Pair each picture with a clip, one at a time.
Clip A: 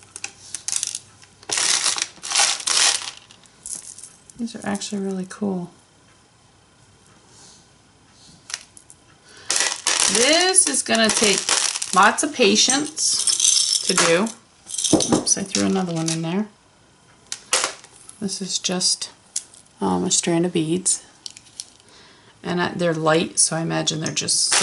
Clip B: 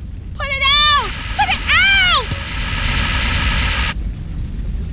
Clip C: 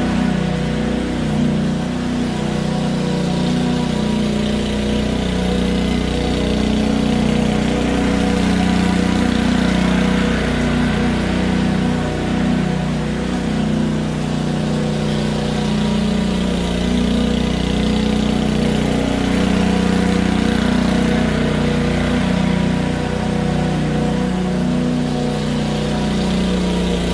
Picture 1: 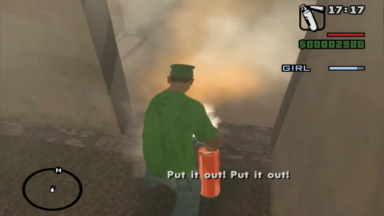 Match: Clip B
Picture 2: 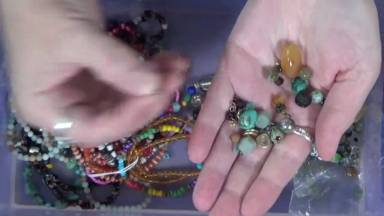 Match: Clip A